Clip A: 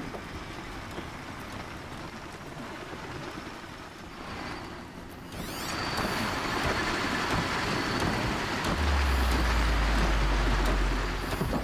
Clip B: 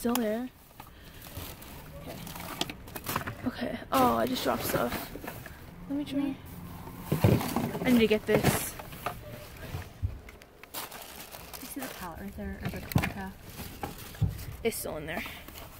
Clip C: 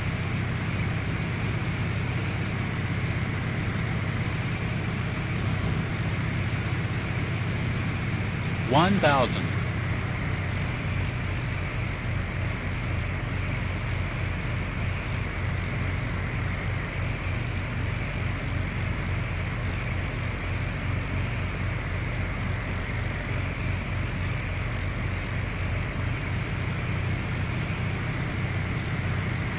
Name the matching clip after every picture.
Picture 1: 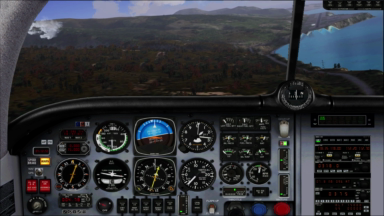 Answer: C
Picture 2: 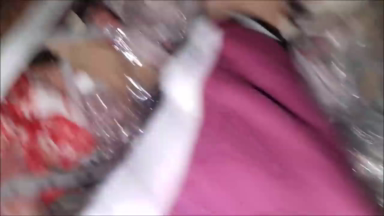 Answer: B